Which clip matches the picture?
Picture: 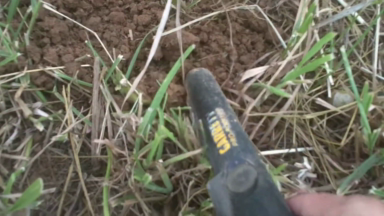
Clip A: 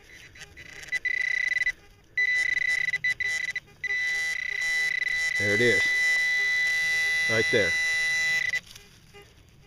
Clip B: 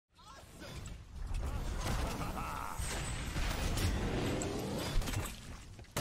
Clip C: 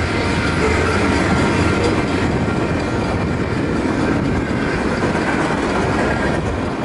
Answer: A